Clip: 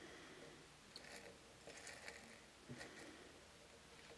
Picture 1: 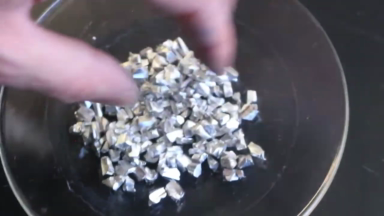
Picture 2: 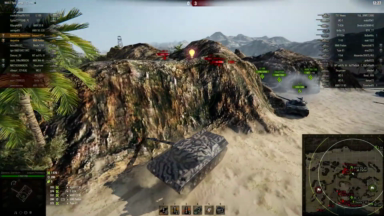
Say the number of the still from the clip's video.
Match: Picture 1